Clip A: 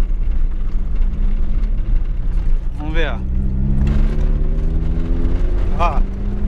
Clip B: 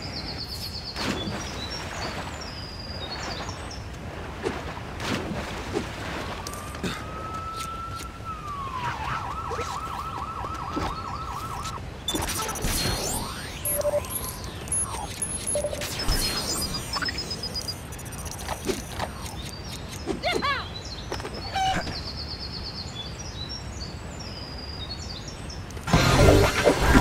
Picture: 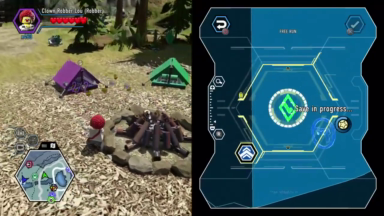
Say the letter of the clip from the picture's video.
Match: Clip B